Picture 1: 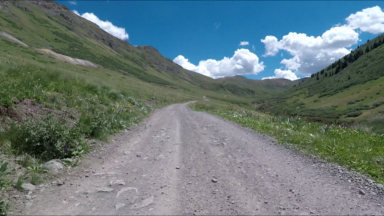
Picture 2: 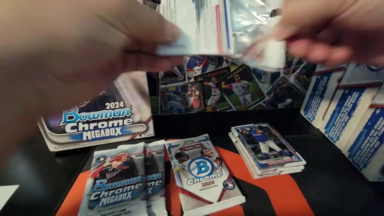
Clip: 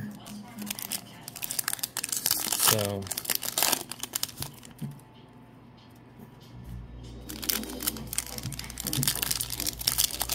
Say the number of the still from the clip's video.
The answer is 2